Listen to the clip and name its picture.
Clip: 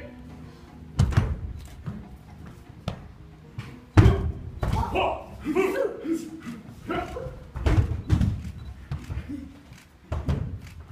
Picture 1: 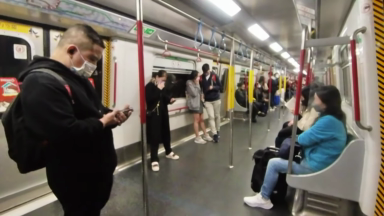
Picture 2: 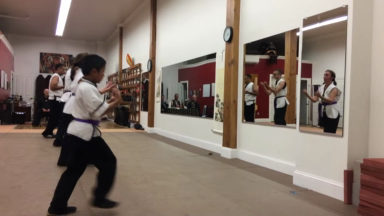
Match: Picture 2